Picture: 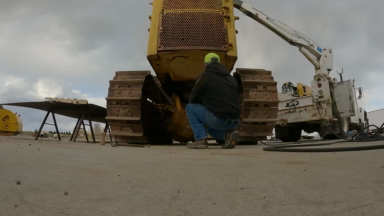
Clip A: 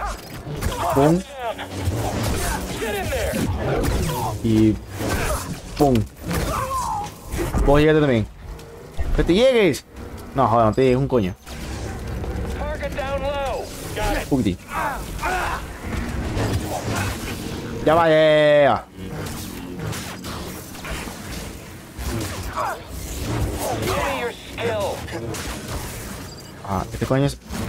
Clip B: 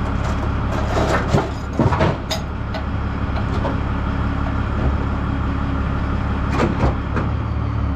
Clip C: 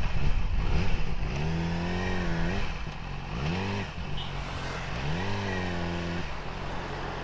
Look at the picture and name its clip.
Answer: B